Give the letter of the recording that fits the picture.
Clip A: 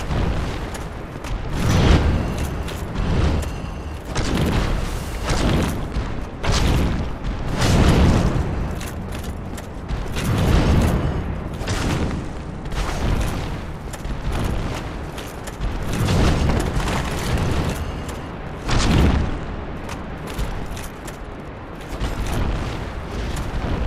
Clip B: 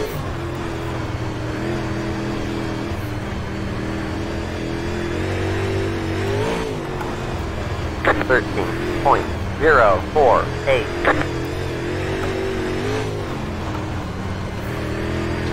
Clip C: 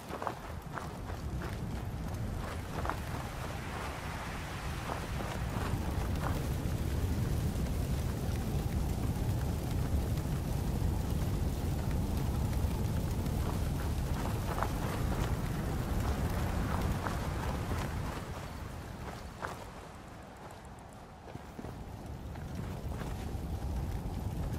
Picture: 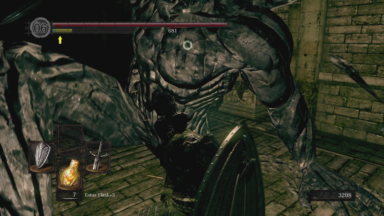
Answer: A